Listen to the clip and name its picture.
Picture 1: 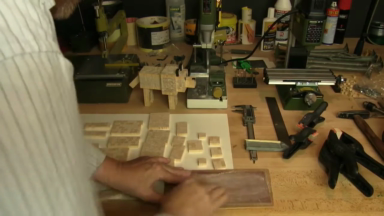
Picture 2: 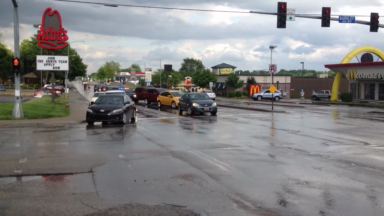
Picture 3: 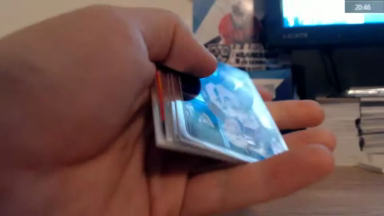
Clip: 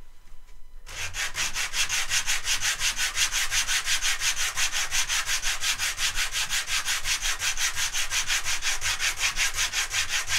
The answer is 1